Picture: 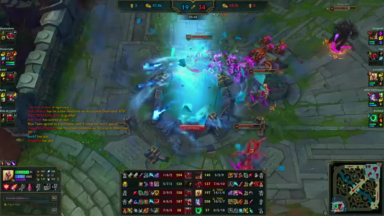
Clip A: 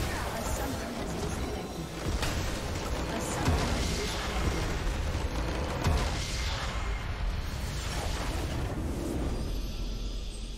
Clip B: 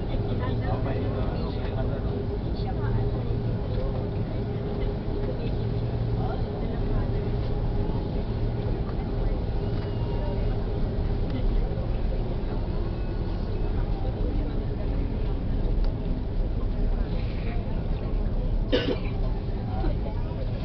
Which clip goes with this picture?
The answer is A